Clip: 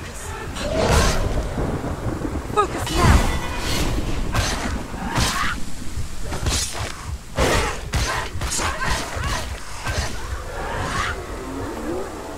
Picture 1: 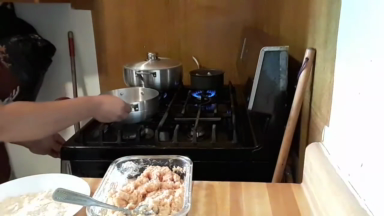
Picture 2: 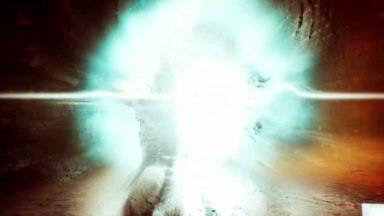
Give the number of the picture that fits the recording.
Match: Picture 2